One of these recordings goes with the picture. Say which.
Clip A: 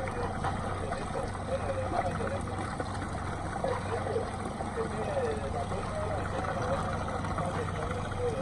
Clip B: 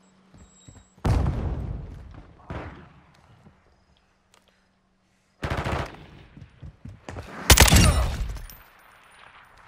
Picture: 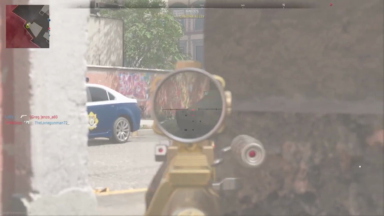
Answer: B